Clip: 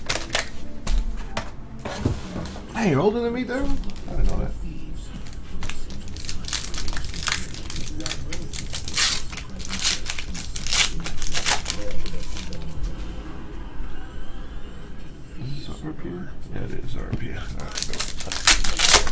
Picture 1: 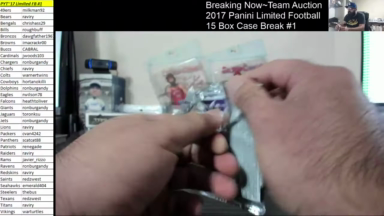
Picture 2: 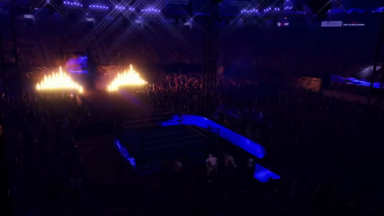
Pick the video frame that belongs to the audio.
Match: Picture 1